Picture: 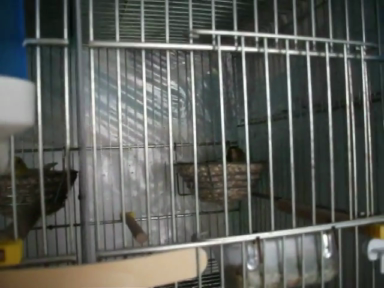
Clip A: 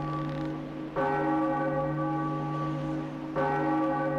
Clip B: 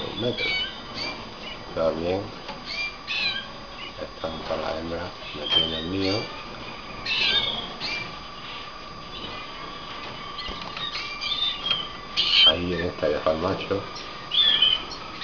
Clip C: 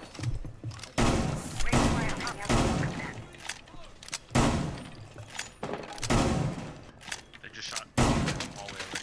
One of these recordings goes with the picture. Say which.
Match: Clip B